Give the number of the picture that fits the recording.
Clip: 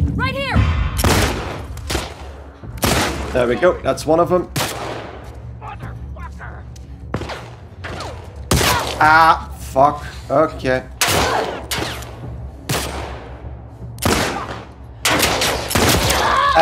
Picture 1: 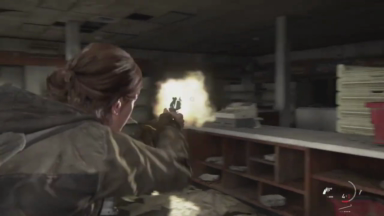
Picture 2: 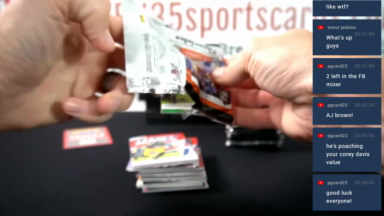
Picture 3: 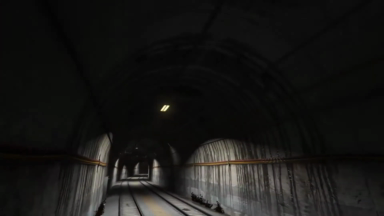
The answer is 1